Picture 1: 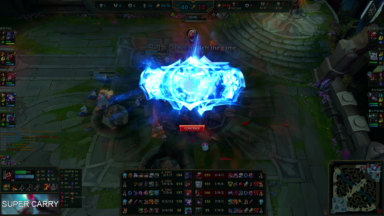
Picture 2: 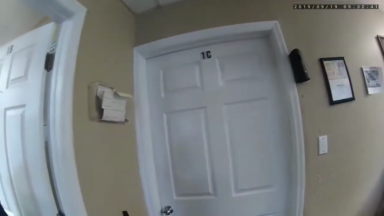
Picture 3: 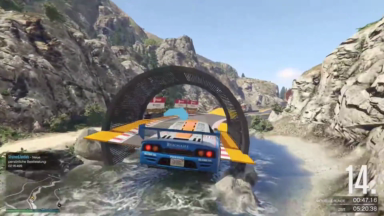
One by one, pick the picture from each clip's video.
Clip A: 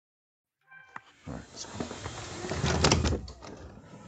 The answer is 2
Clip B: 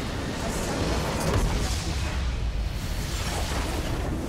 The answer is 1